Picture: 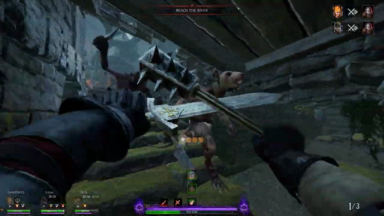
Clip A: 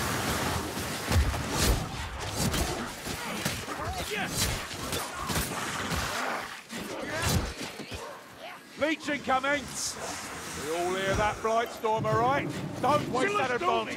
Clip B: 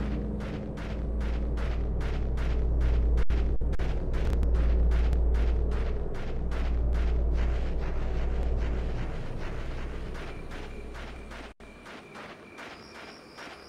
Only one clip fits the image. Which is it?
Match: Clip A